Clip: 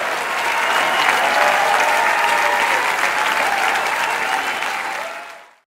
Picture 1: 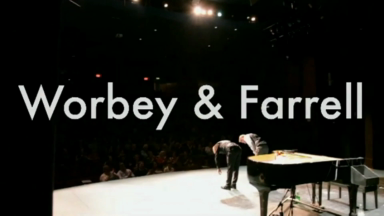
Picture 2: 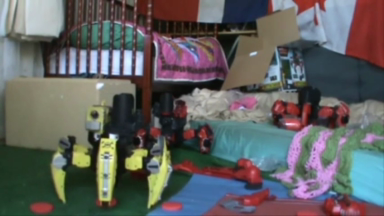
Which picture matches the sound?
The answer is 1